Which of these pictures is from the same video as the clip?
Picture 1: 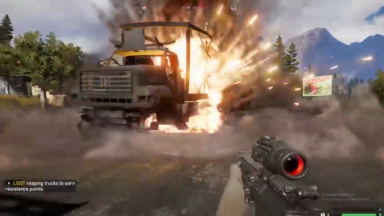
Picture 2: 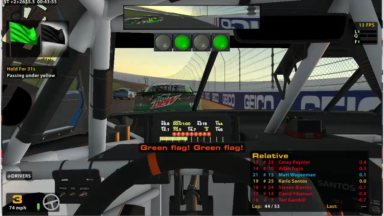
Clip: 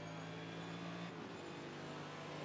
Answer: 2